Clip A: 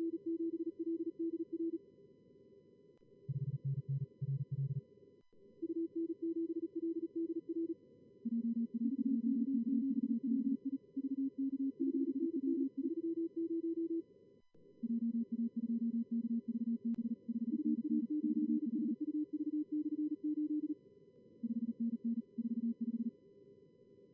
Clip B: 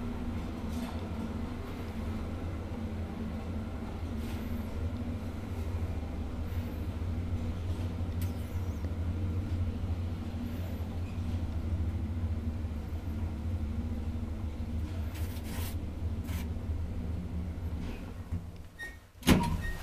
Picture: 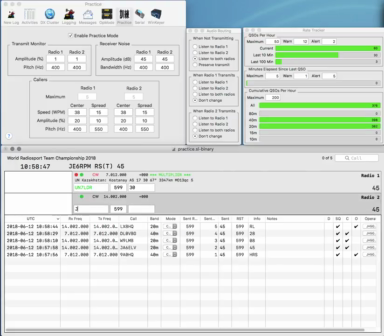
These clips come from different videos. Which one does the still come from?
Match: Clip A